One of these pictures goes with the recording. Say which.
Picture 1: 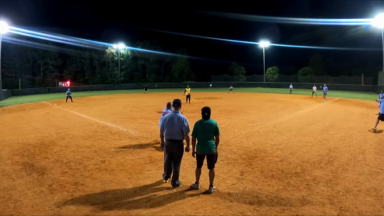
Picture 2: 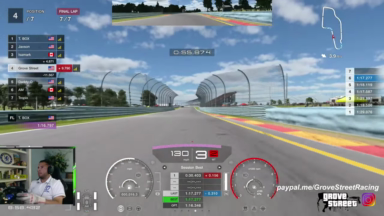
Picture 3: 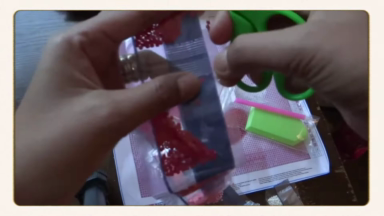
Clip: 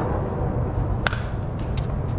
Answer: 1